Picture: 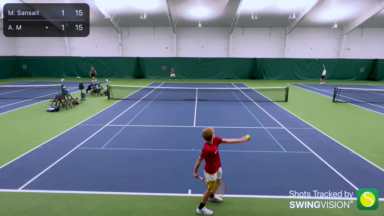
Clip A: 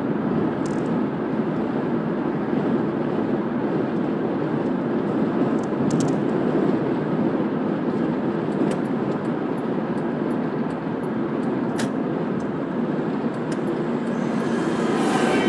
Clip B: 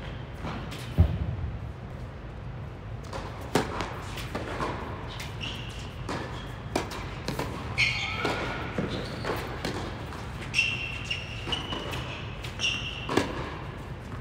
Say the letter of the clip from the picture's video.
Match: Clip B